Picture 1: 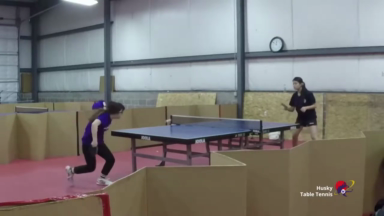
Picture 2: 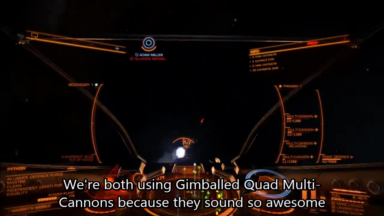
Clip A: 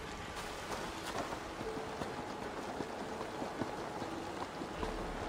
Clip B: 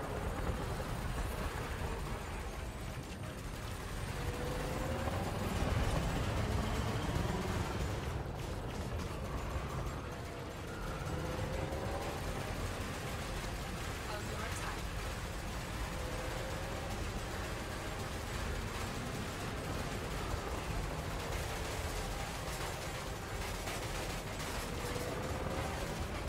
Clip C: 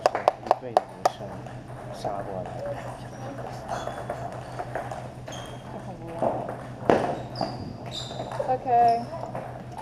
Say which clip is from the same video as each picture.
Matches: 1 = C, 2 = B